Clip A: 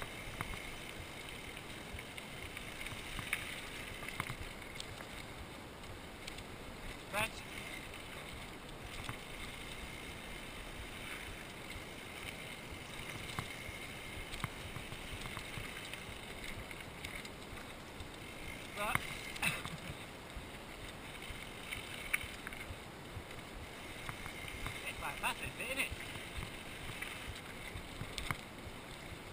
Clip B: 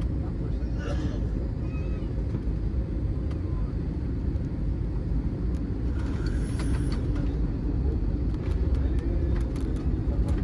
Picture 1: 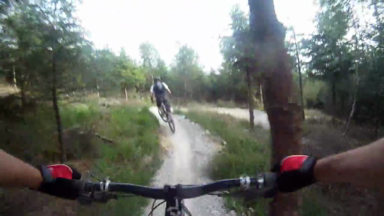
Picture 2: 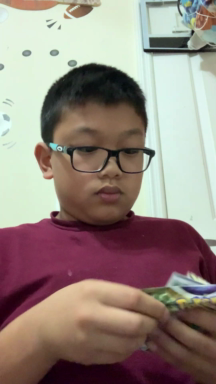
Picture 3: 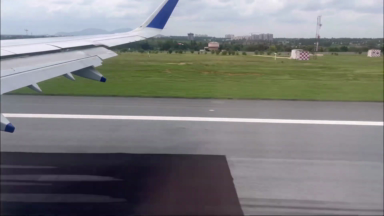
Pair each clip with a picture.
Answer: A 1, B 3